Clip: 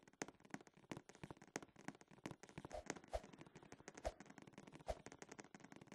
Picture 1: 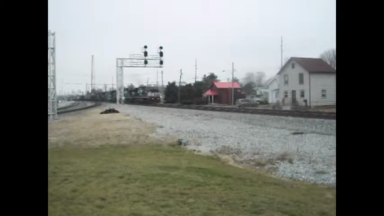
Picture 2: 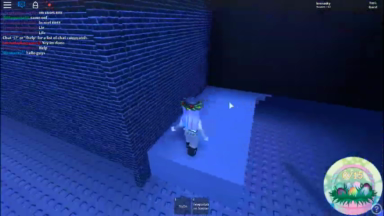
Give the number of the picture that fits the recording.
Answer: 2